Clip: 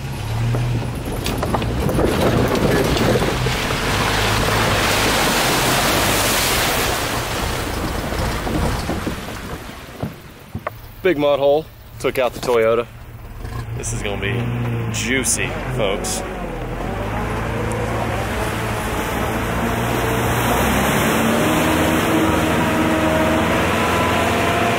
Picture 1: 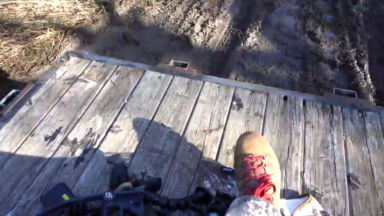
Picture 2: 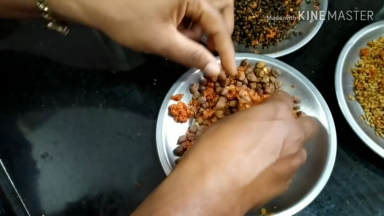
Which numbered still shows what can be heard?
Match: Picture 1